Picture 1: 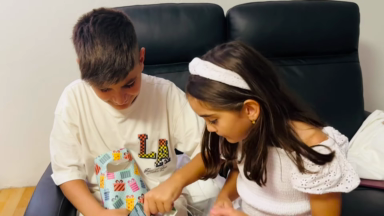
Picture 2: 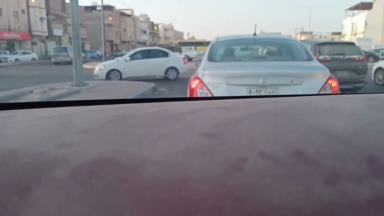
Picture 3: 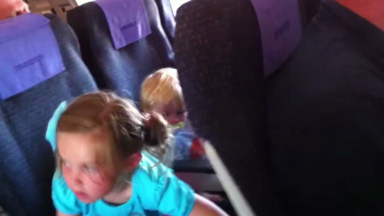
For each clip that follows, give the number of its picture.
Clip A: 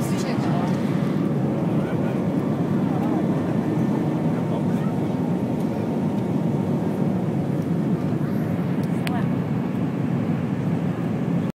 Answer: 3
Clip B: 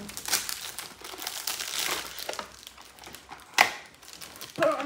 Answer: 1